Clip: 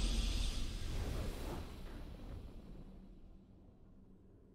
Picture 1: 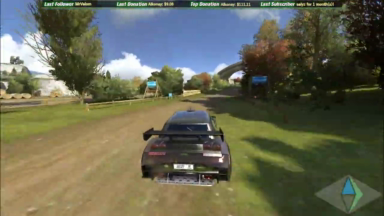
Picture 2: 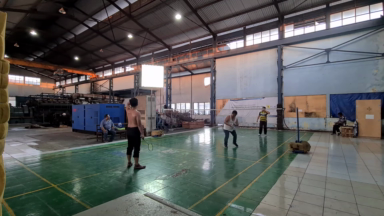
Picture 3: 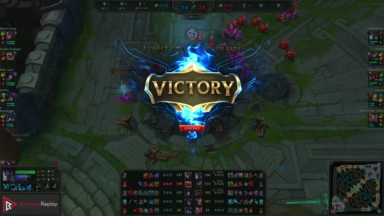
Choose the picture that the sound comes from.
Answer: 3